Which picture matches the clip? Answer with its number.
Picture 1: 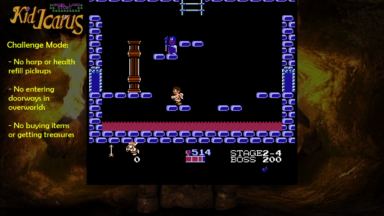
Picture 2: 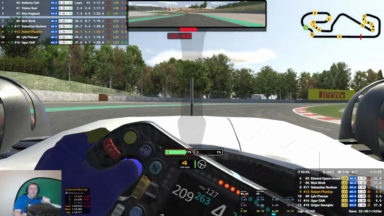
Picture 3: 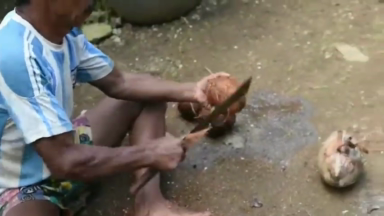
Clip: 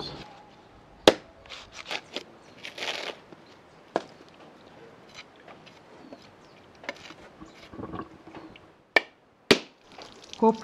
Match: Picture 3